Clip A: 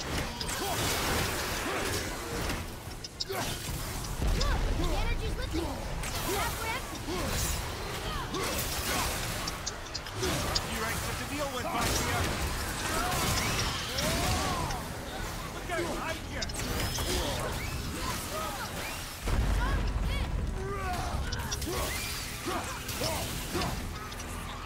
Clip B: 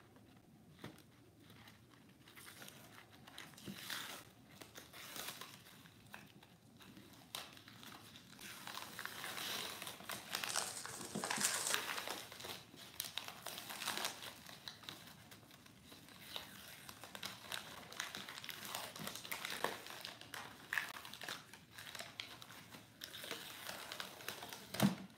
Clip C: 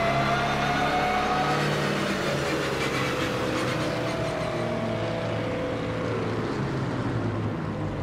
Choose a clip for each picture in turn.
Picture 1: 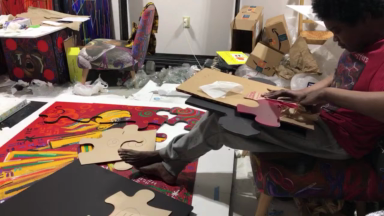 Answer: B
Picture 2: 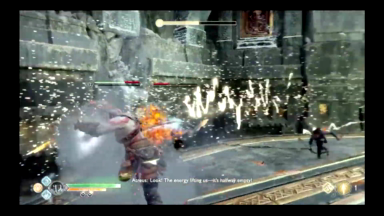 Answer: A